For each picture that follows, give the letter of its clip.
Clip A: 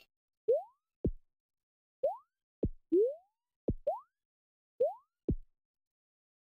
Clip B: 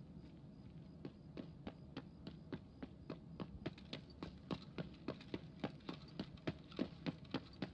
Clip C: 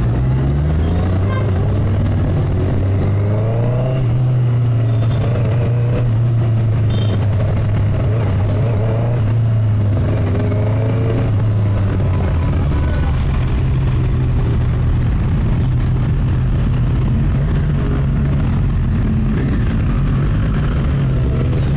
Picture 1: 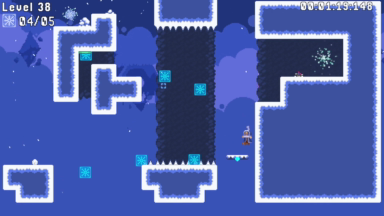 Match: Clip A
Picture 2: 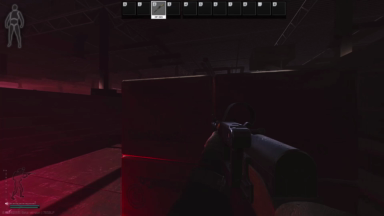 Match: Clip B